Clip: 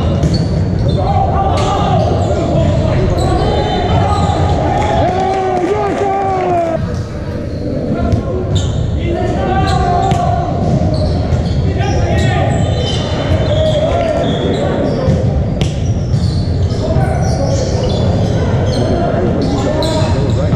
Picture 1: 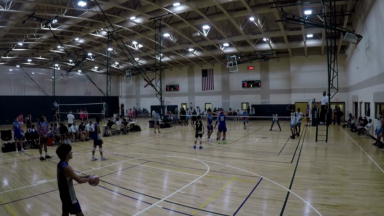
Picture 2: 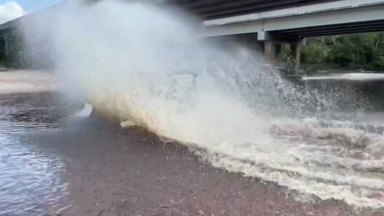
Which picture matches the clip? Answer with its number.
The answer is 1